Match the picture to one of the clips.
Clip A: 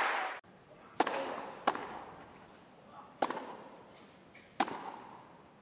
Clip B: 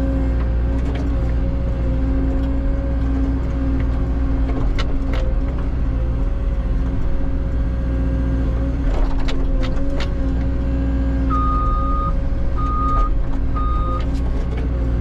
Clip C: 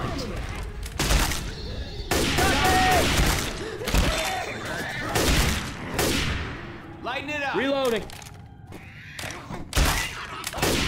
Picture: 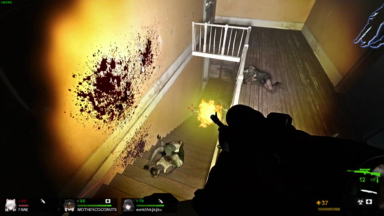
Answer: C